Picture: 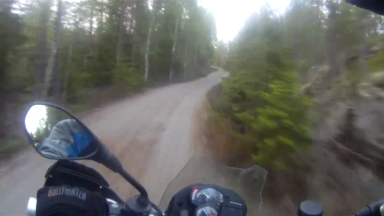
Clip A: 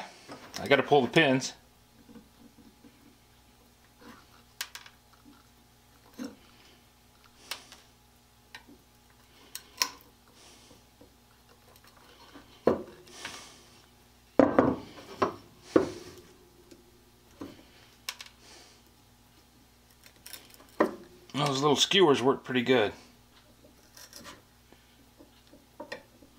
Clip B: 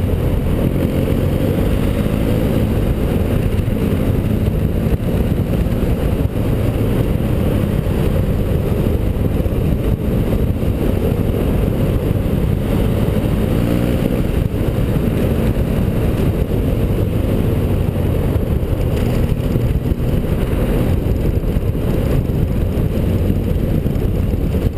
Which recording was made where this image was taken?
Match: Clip B